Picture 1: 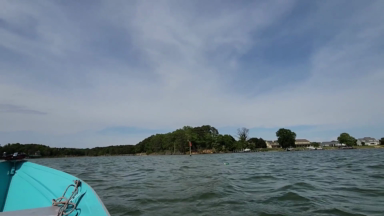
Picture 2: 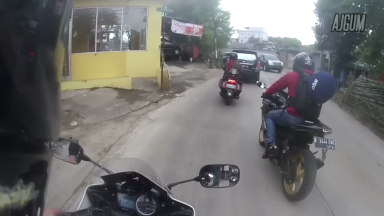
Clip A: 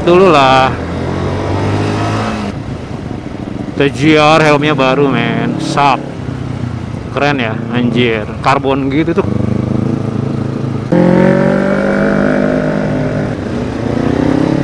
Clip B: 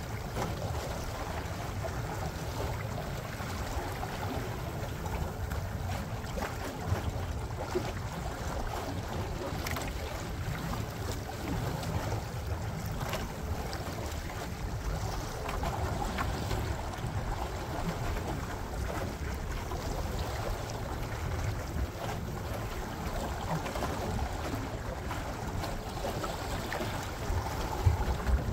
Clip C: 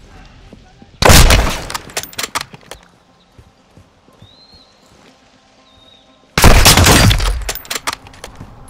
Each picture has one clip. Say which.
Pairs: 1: B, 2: A